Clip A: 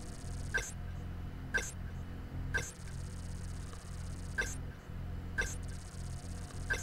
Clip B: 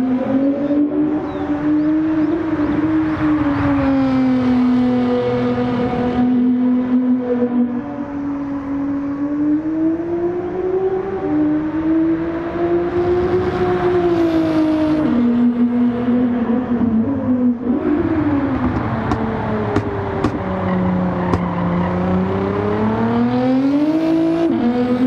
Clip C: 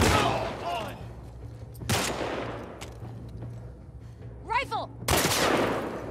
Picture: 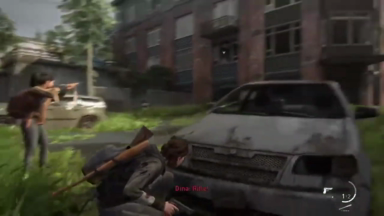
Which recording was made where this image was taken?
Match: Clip C